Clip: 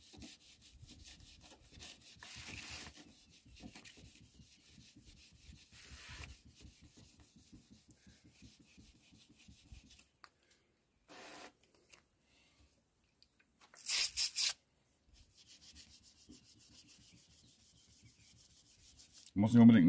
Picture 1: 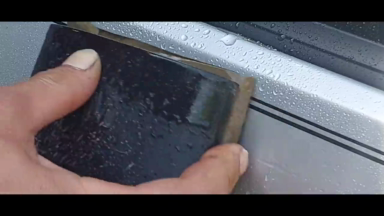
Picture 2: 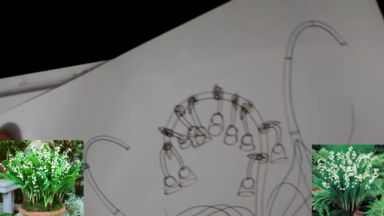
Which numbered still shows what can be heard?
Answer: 1